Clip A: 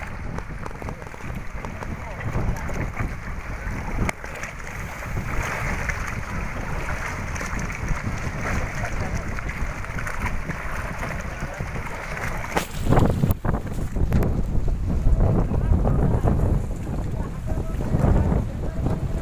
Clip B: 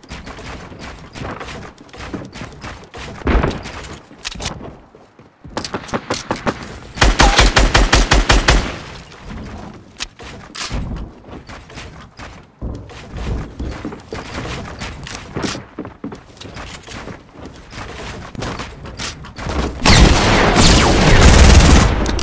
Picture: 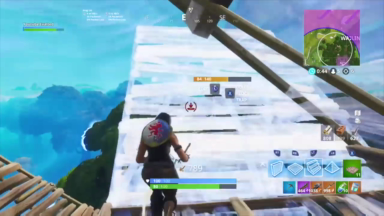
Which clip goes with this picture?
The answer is B